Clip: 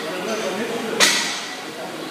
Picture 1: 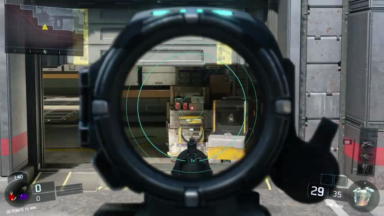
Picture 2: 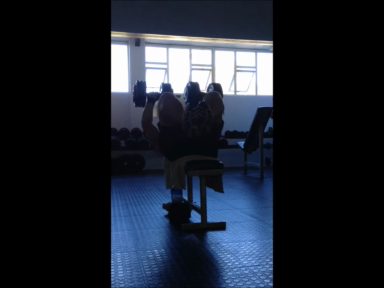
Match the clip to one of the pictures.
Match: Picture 2